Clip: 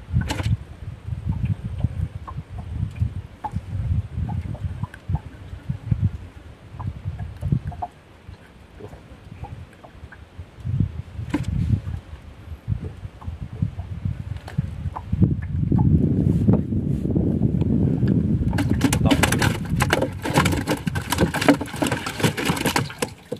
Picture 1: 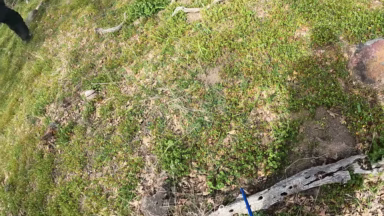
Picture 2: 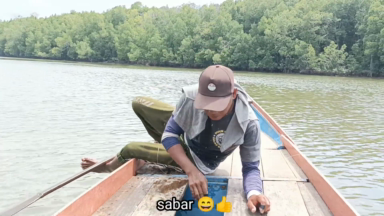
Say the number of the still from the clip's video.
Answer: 2